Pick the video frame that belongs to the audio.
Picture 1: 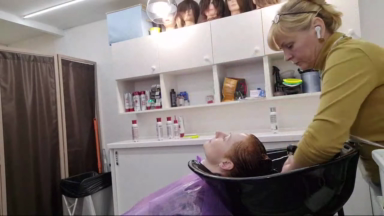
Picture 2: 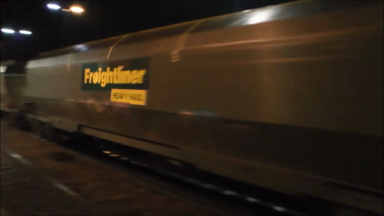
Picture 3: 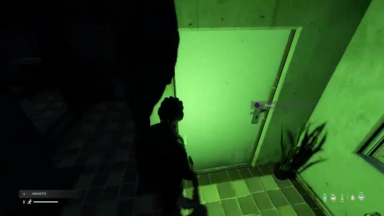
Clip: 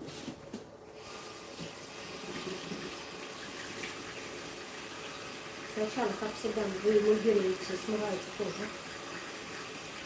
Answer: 1